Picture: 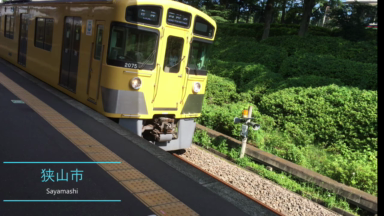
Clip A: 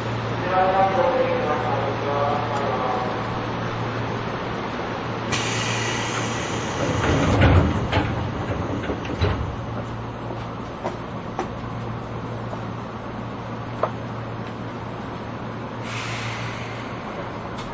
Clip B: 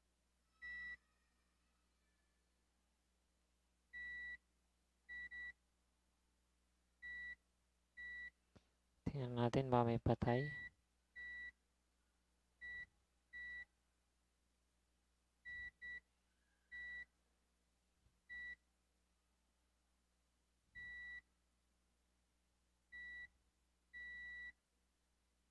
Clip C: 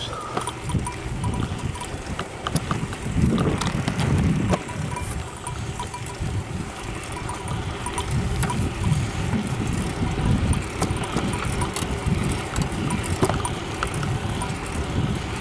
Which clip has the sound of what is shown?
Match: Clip A